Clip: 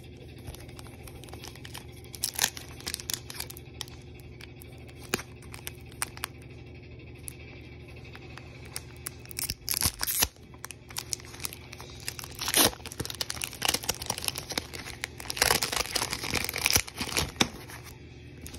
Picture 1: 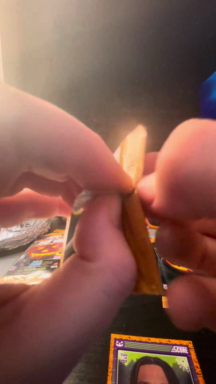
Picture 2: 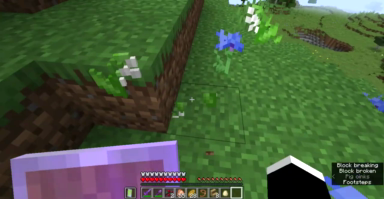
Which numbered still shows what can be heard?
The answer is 1